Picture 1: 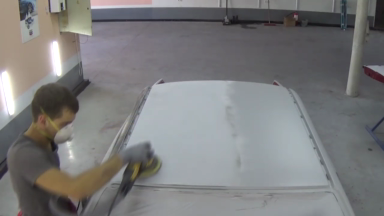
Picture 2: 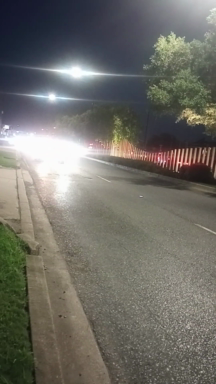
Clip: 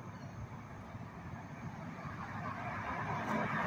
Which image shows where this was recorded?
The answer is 2